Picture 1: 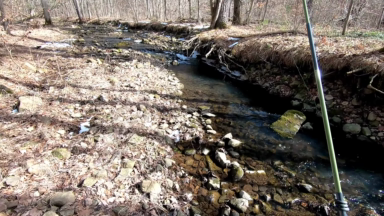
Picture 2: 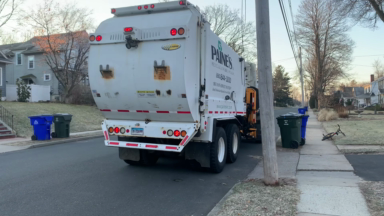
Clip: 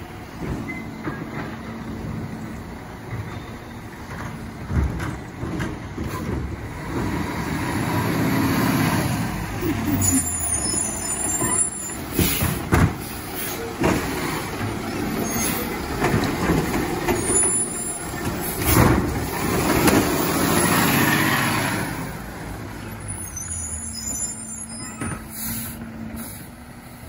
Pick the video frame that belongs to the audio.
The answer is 2